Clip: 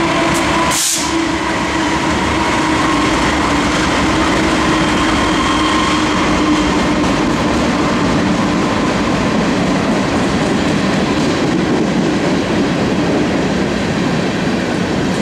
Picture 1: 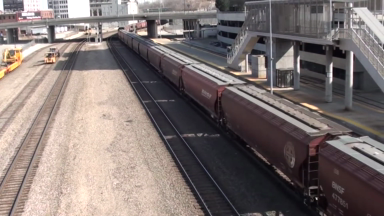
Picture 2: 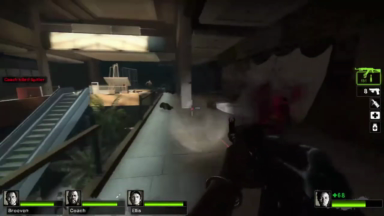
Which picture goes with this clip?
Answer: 1